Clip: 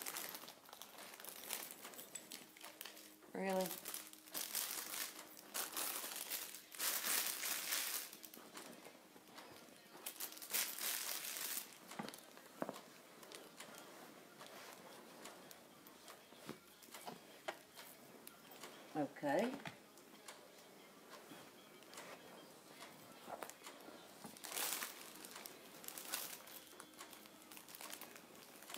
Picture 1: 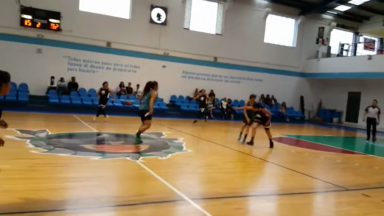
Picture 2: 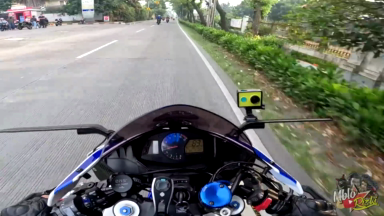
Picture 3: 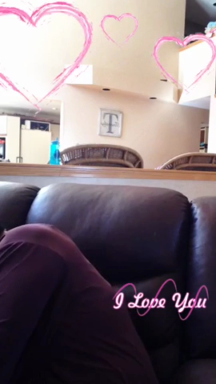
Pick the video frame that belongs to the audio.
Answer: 3